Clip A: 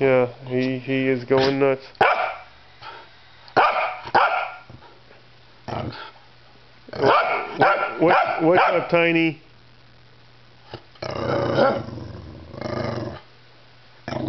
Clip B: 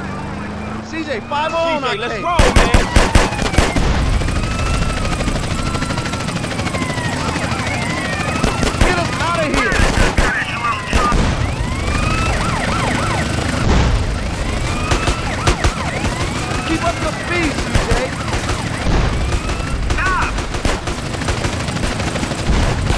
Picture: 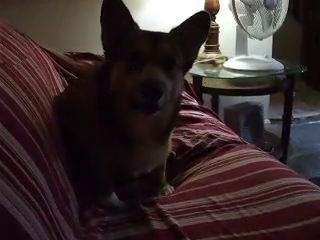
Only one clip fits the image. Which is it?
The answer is A